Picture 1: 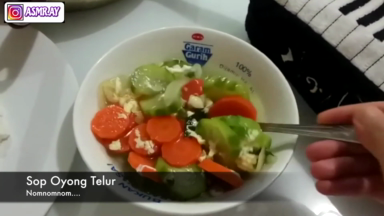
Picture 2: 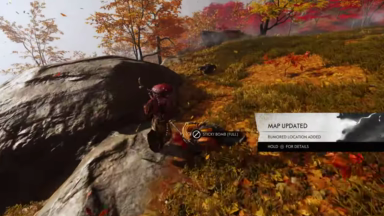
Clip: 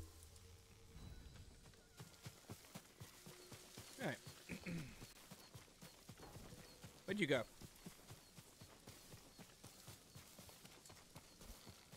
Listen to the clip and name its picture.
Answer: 2